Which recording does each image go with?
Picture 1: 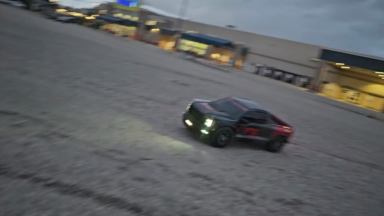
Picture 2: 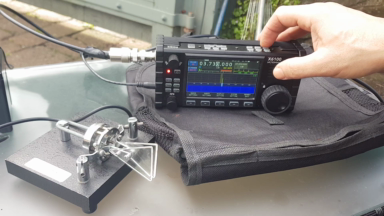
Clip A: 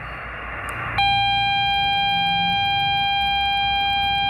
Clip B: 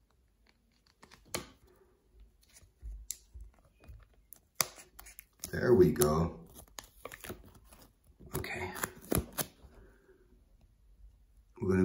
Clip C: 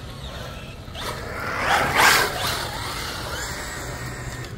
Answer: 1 C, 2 A